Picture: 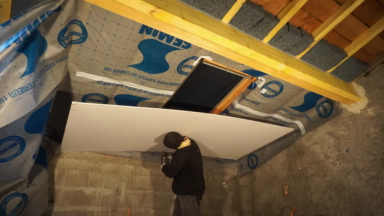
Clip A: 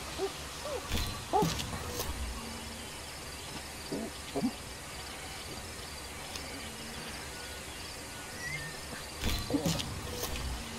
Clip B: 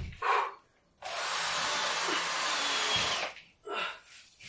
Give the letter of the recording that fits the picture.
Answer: B